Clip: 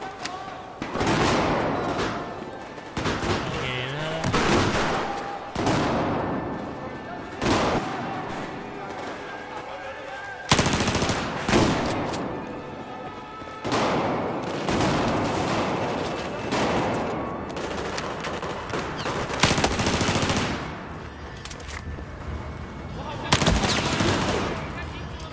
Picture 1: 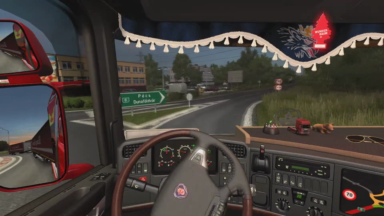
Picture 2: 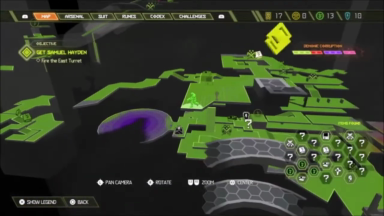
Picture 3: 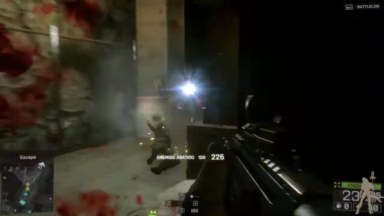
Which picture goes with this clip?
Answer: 3